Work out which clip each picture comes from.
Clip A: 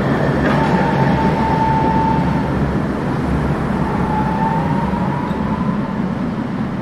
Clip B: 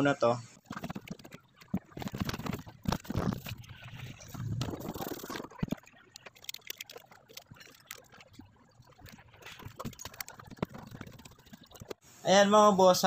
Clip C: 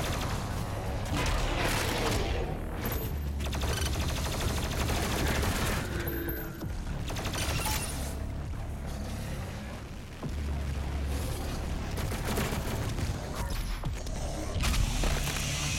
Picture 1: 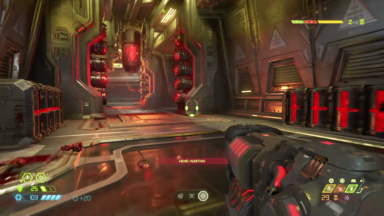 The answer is C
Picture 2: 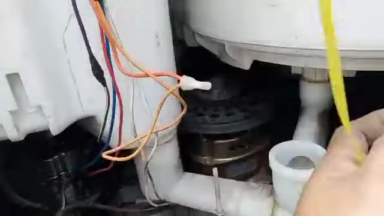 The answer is B